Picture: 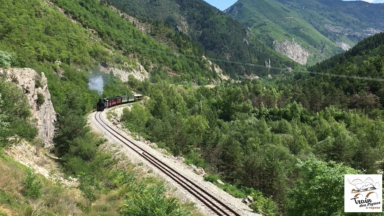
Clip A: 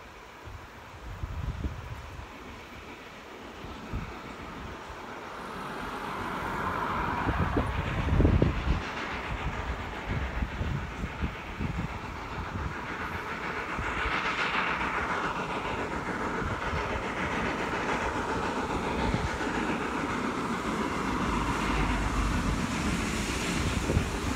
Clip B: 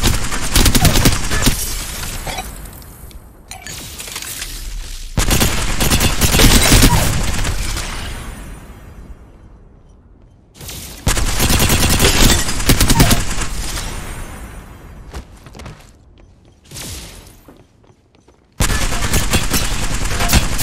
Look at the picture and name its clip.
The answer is A